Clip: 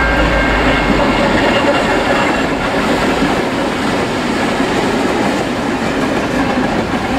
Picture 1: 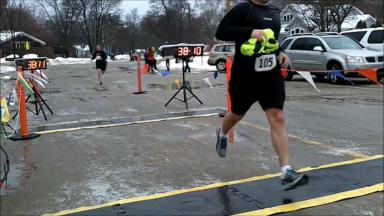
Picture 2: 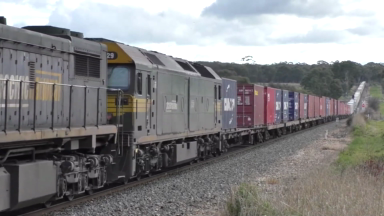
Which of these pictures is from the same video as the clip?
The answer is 2